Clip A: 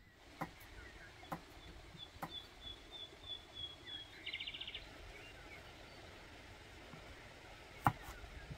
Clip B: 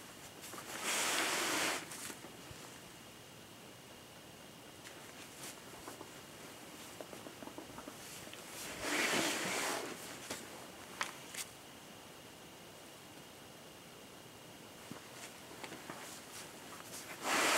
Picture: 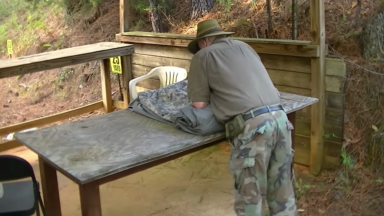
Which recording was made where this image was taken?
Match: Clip B